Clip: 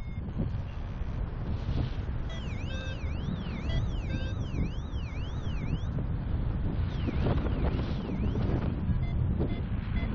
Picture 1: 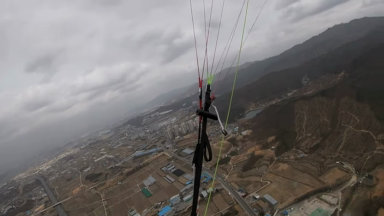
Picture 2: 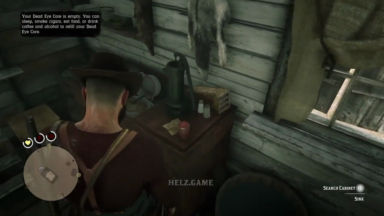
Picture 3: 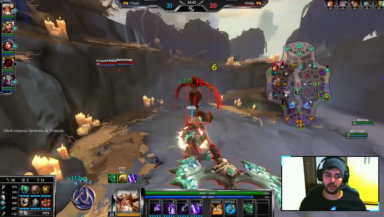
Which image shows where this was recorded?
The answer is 1